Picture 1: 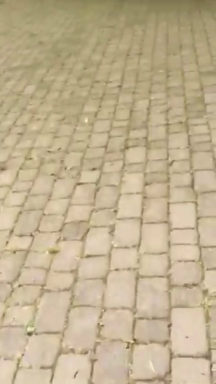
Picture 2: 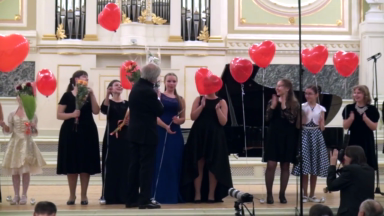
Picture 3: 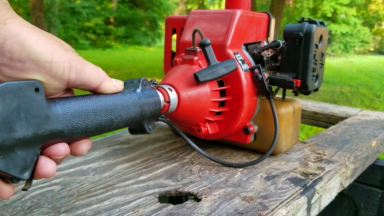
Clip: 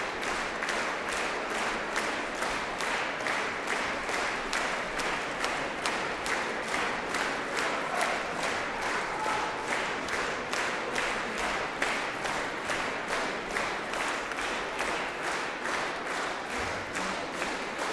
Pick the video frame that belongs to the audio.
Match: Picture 2